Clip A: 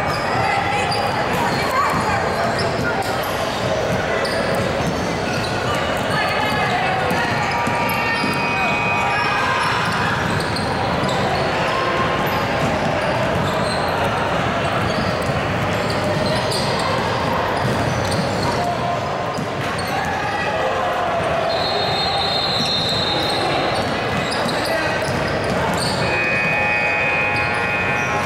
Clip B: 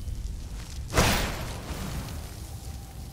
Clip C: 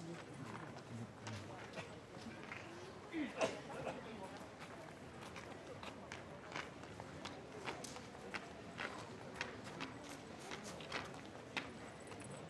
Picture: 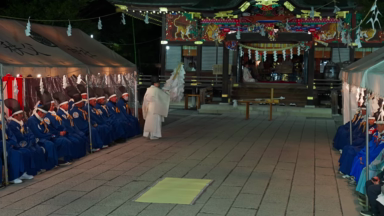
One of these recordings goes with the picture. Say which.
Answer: C